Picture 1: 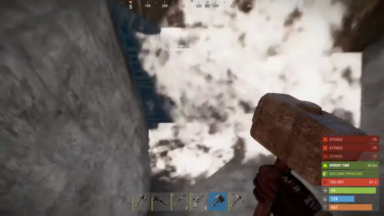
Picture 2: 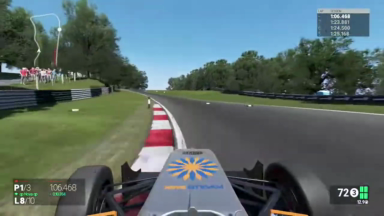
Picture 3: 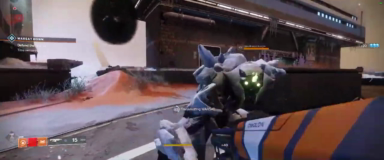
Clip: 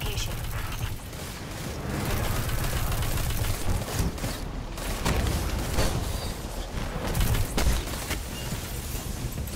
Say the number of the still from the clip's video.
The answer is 3